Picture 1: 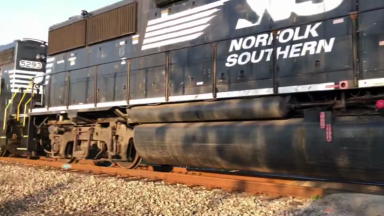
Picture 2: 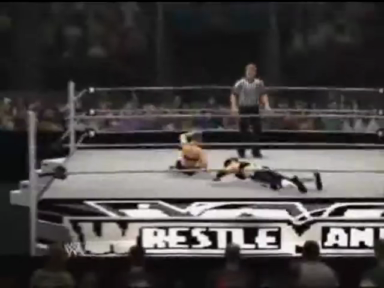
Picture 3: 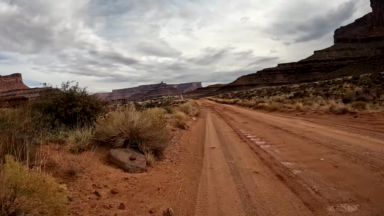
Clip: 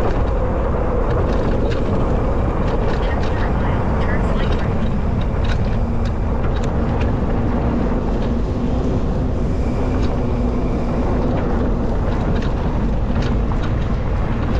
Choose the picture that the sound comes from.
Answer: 3